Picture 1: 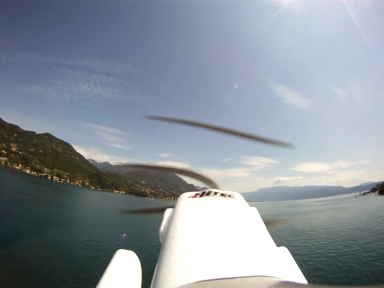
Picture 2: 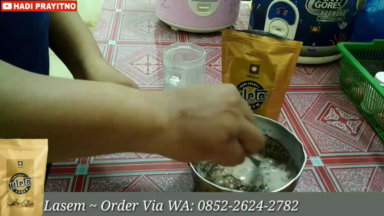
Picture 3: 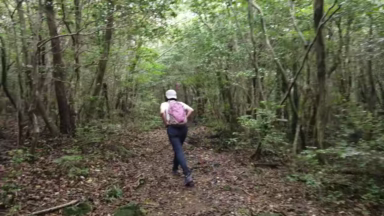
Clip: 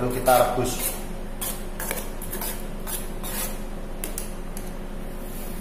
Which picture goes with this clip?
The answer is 2